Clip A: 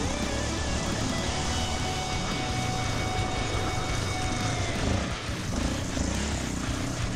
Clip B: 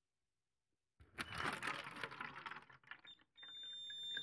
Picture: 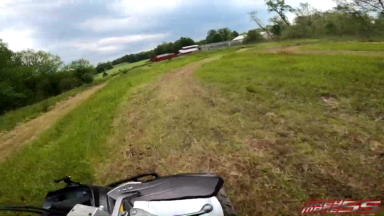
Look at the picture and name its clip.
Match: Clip A